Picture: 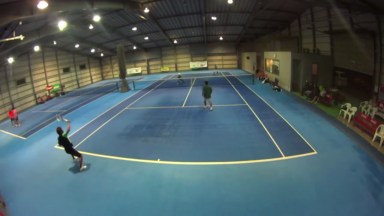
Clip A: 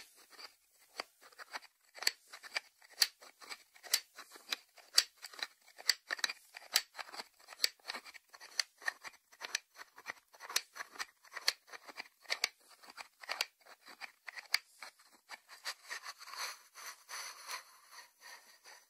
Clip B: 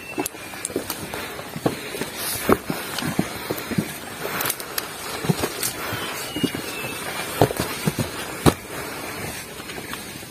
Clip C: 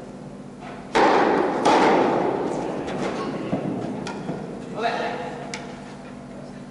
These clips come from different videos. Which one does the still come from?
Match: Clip C